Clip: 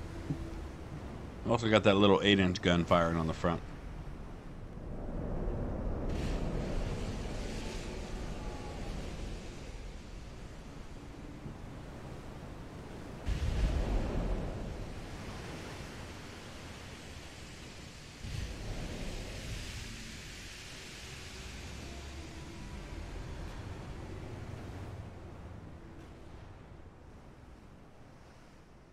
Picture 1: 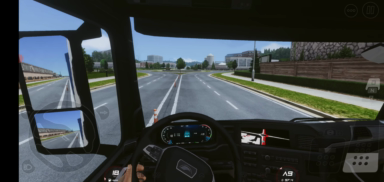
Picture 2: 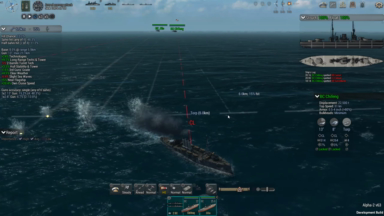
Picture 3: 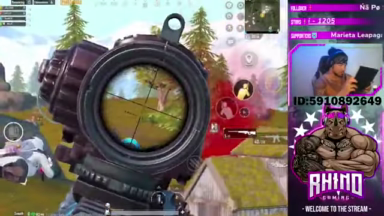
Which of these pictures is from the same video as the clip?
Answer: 2